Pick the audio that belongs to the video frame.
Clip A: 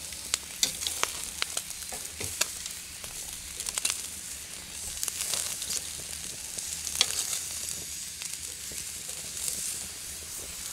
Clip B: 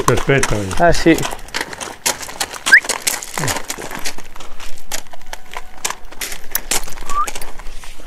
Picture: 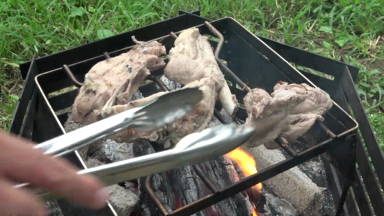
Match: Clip A